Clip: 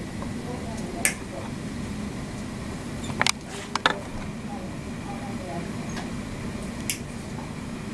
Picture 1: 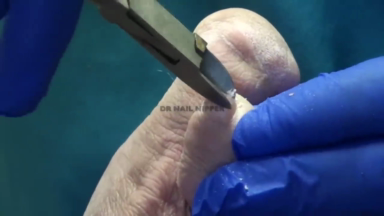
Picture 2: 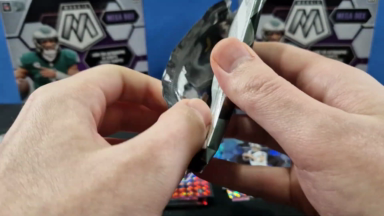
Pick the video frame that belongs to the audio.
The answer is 1